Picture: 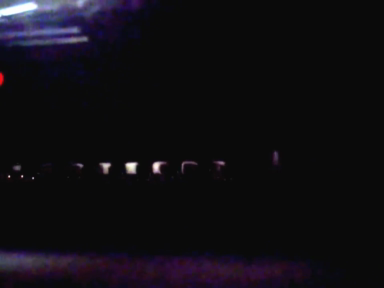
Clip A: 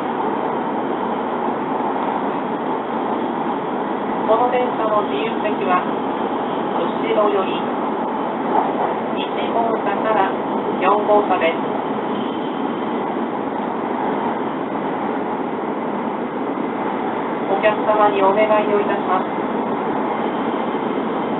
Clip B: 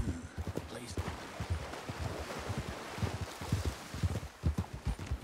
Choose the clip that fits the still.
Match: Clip A